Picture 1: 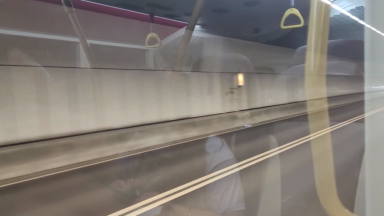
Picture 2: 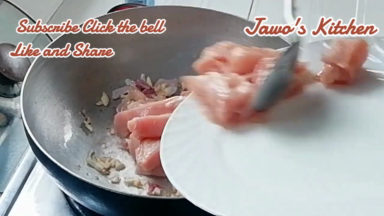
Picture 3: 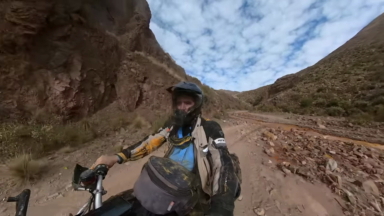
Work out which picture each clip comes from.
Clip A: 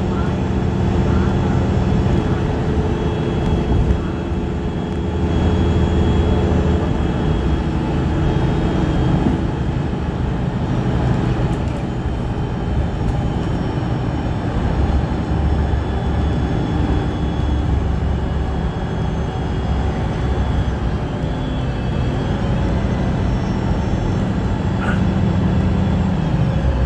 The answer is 1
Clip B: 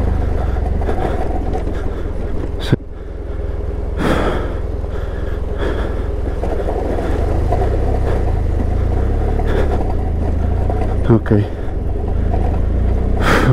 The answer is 3